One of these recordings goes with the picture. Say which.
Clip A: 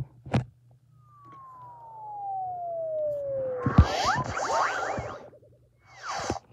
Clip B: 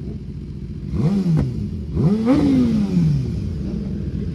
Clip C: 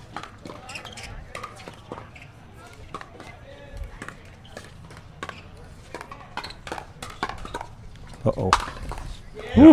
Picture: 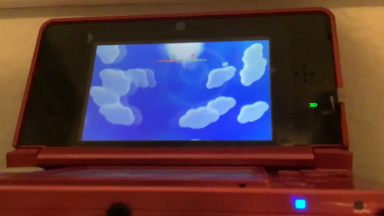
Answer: A